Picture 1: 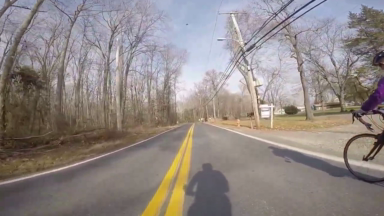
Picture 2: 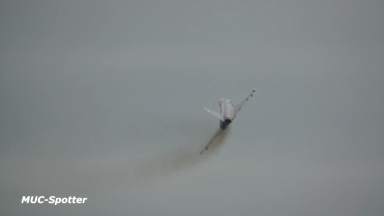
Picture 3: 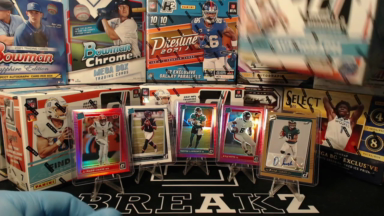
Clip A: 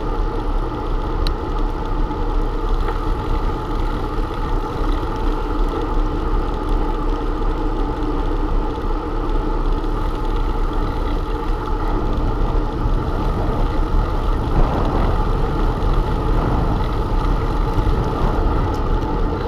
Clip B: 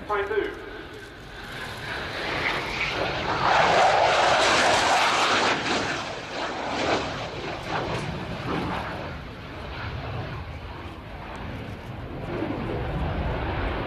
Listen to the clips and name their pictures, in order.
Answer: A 1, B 2